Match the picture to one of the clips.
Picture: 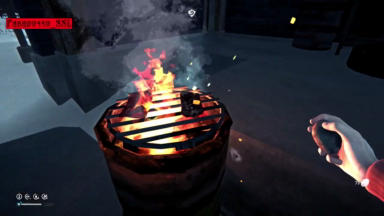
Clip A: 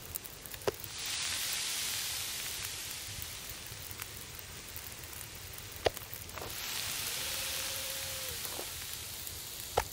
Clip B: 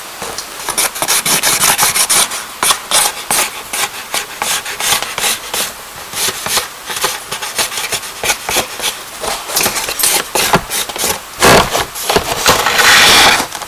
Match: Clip A